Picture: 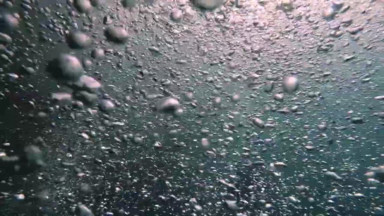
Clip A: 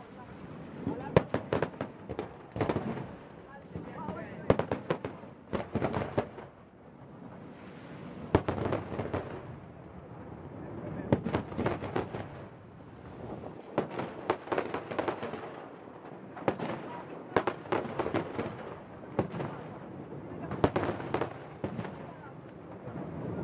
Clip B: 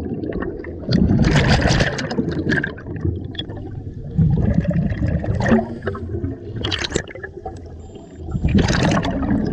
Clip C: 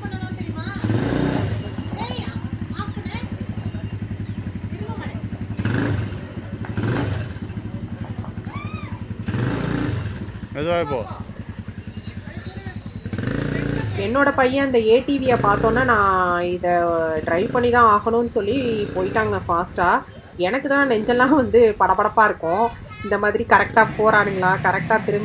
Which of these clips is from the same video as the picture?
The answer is B